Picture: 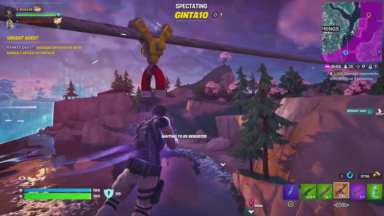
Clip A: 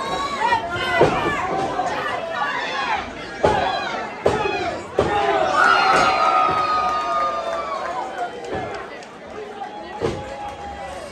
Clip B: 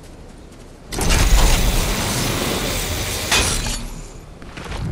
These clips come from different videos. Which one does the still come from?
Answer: B